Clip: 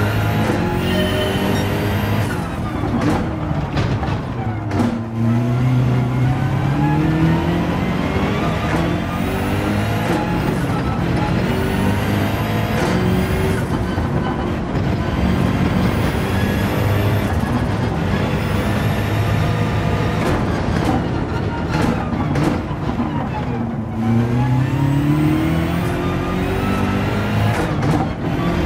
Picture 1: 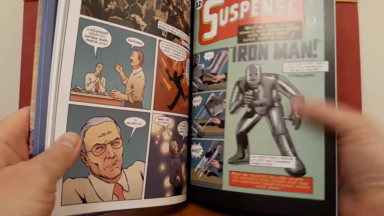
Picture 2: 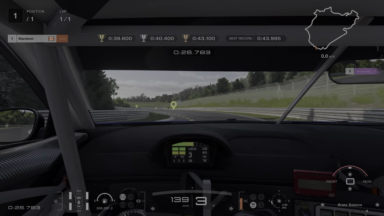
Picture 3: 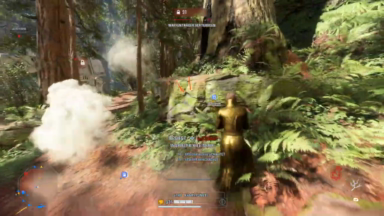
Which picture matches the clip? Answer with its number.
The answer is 2